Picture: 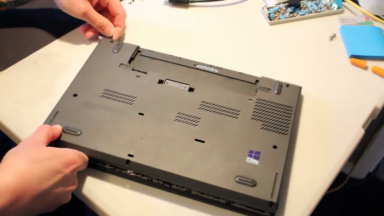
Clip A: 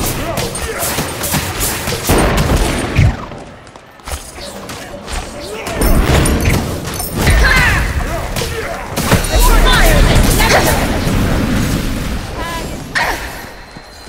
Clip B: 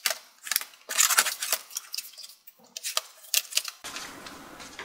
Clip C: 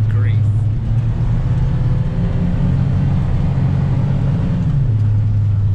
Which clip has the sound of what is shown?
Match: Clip B